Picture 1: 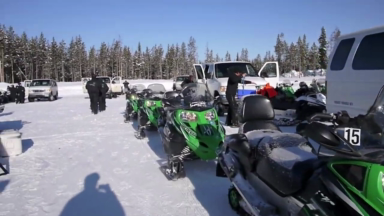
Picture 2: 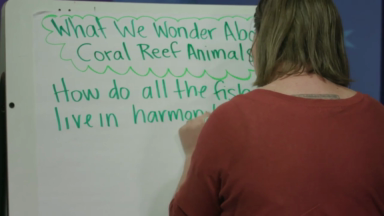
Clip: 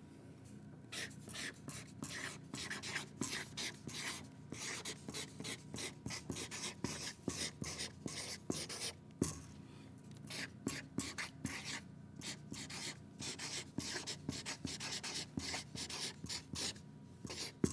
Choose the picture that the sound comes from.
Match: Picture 2